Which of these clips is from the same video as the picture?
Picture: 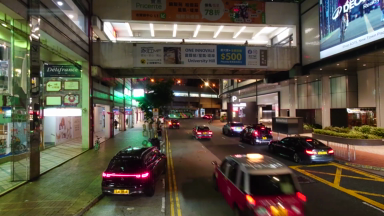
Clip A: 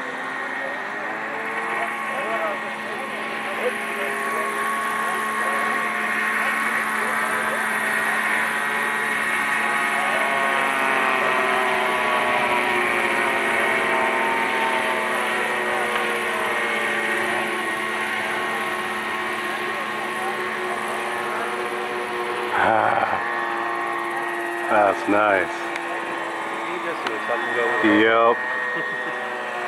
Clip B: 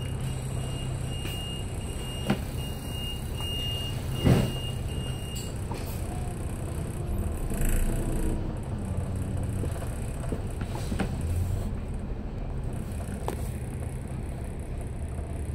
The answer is B